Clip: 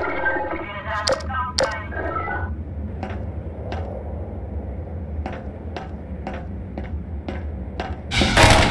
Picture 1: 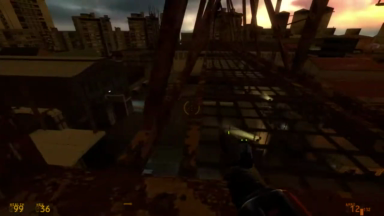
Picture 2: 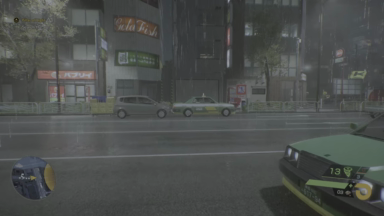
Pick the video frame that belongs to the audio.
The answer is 1